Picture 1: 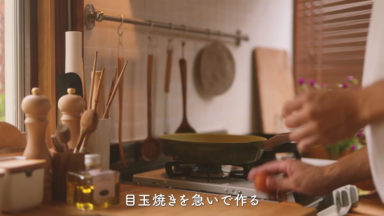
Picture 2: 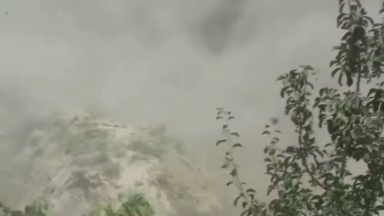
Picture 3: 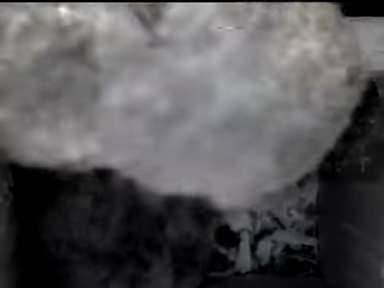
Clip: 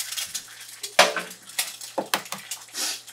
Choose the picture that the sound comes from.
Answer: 1